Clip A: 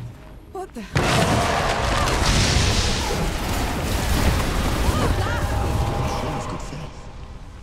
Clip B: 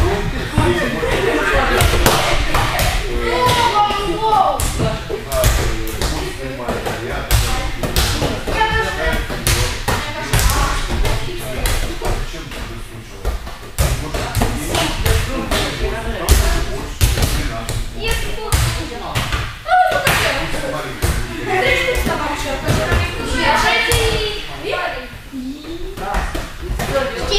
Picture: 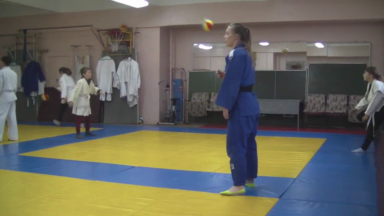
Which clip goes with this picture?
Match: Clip B